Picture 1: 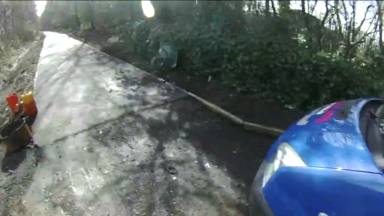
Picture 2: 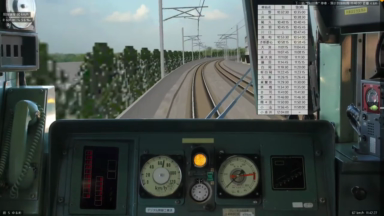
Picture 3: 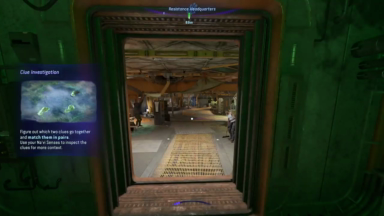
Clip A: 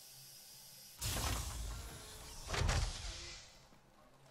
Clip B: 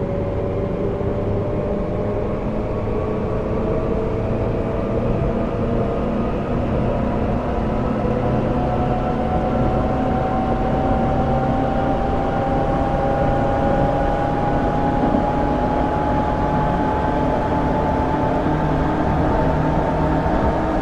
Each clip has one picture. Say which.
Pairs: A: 3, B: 2